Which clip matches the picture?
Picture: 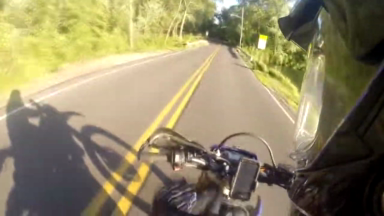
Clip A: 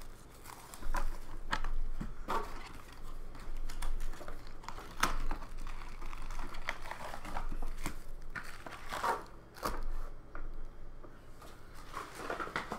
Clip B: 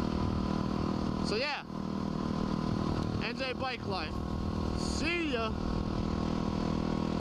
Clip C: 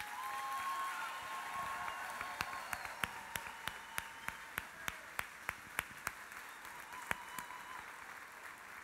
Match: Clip B